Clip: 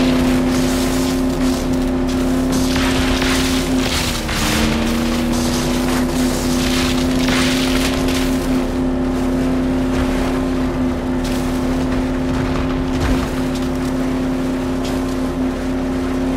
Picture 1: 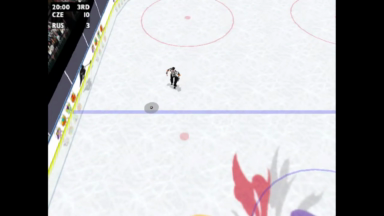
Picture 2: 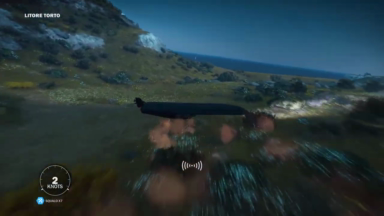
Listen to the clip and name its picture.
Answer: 2